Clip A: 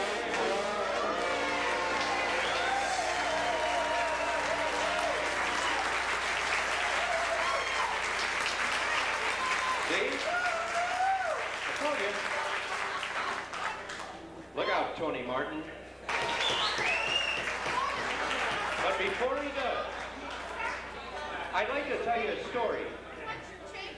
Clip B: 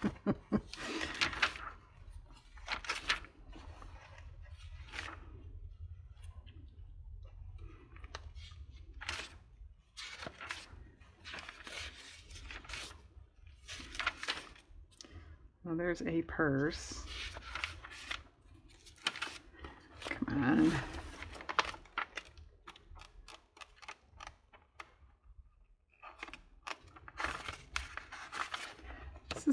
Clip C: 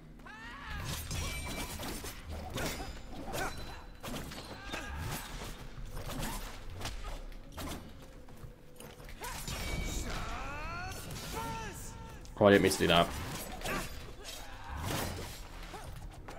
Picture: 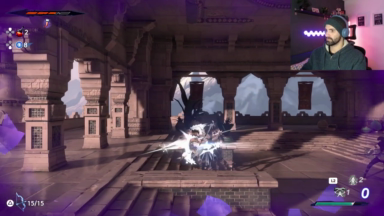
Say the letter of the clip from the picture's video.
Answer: C